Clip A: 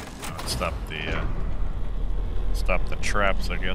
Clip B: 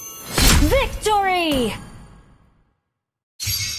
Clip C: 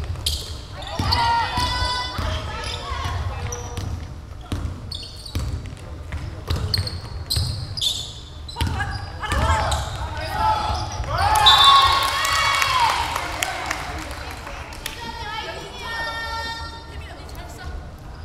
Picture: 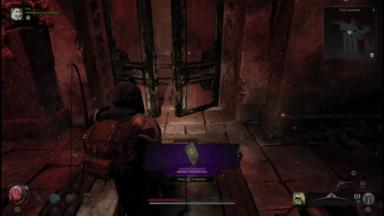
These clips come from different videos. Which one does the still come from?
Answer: A